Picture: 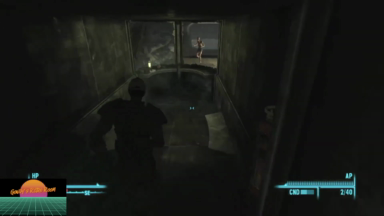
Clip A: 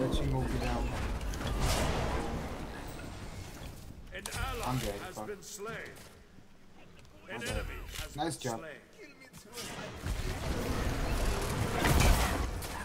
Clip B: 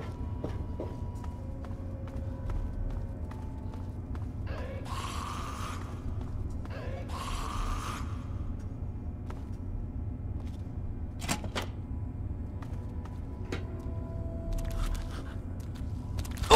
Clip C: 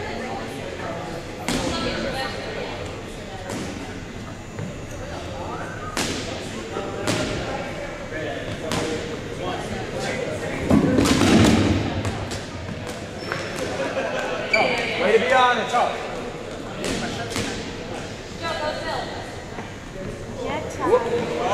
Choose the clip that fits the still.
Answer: B